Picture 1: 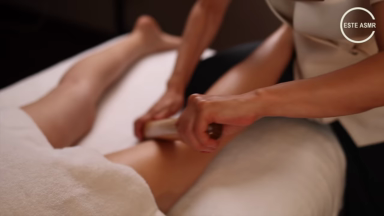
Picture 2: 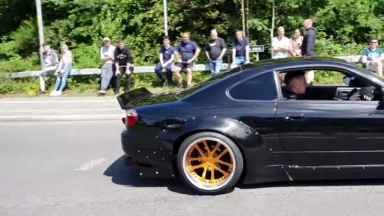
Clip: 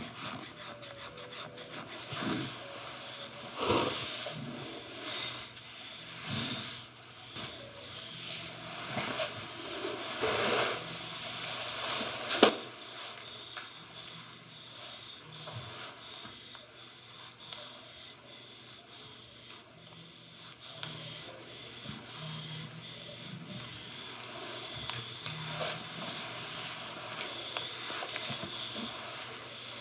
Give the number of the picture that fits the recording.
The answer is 1